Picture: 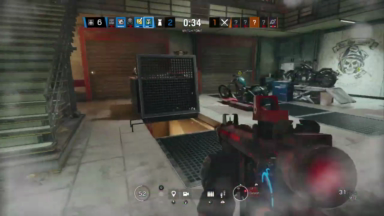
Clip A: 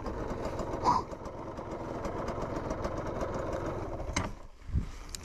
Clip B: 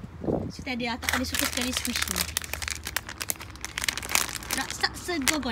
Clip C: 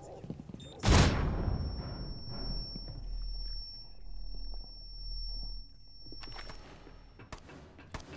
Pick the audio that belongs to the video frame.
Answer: C